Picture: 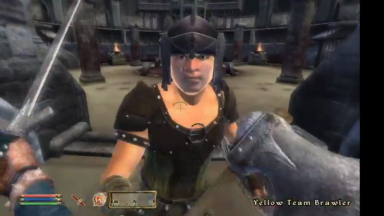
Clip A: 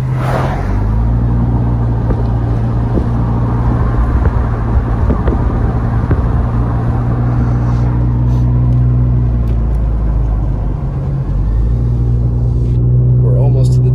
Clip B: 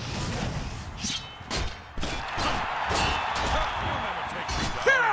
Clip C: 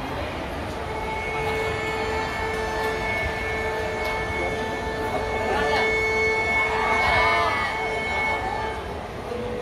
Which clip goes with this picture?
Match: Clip B